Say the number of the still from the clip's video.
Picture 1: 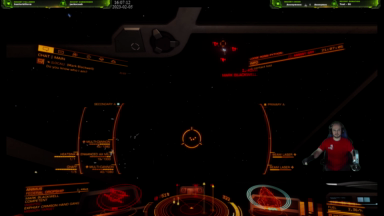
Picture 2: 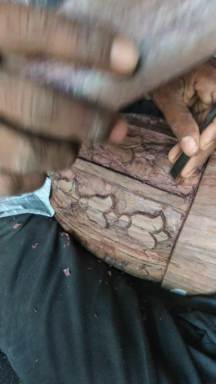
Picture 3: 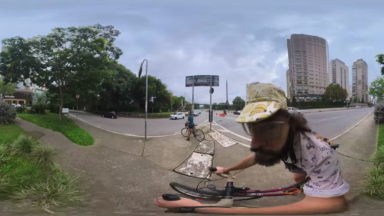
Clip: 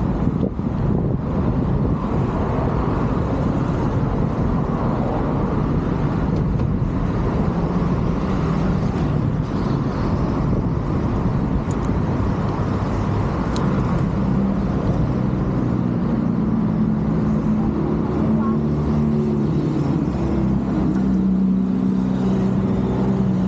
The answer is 3